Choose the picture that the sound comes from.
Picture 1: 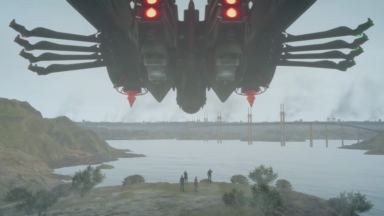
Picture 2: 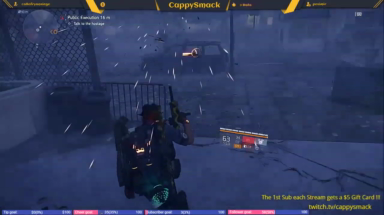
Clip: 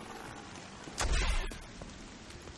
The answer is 2